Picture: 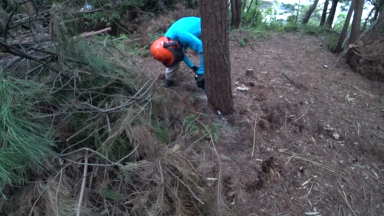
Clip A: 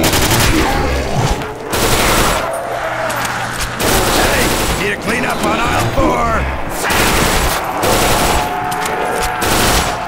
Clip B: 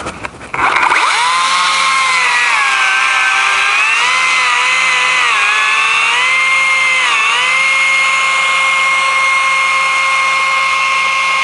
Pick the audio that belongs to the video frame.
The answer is B